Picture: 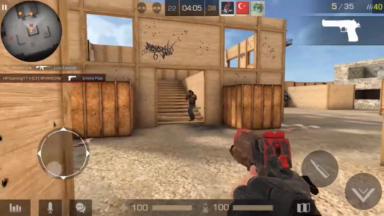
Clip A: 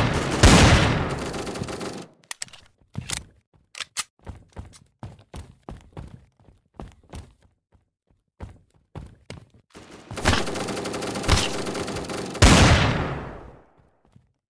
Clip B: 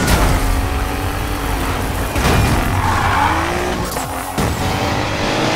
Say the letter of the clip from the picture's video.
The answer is A